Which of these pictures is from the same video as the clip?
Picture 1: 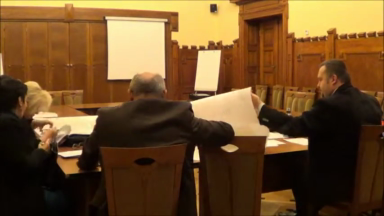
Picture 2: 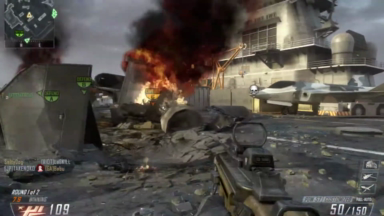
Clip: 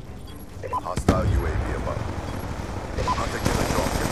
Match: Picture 2